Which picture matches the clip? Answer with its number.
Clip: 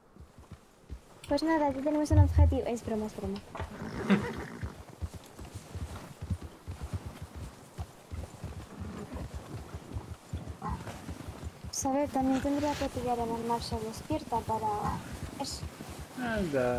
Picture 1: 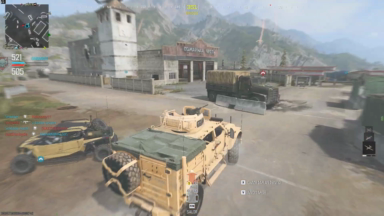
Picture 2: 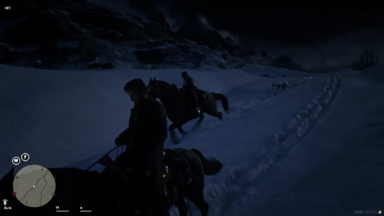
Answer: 2